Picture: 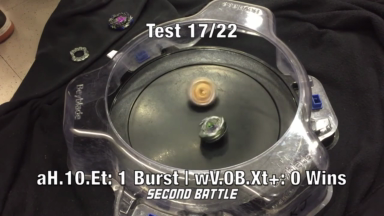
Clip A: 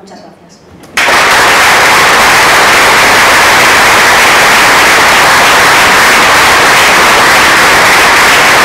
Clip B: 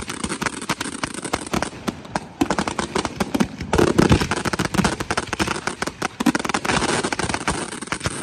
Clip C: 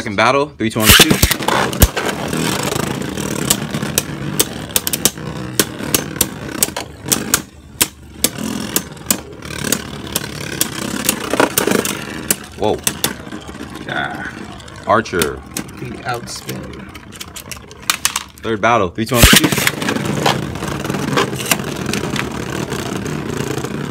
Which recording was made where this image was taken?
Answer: C